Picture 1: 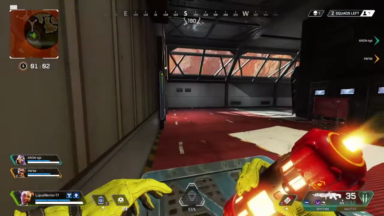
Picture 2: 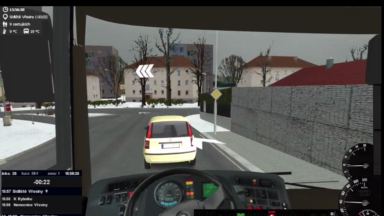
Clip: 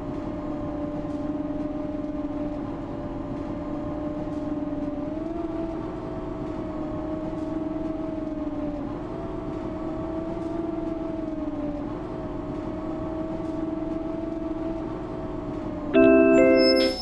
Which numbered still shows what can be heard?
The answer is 2